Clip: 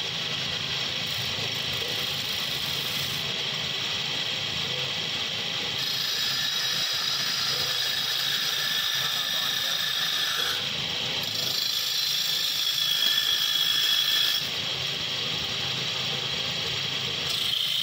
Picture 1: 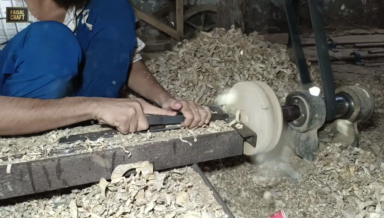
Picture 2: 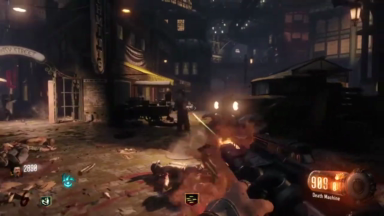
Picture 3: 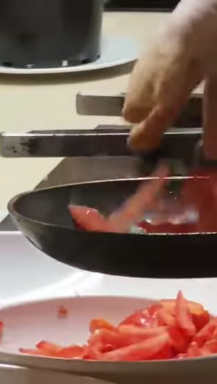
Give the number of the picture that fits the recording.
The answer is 1